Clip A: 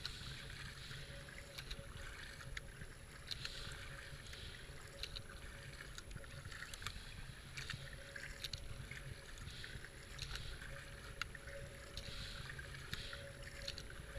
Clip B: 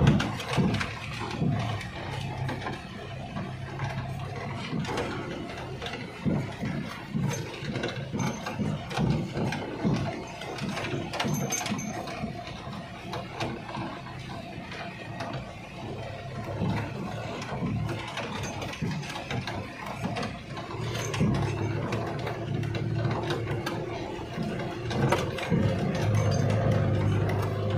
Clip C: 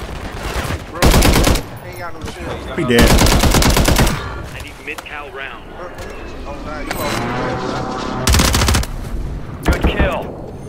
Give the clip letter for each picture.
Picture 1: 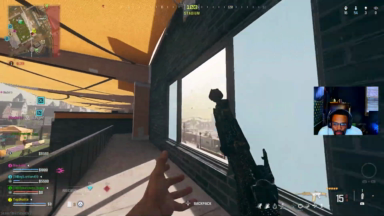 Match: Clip C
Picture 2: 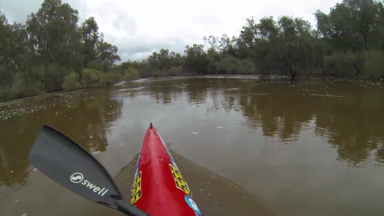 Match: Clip A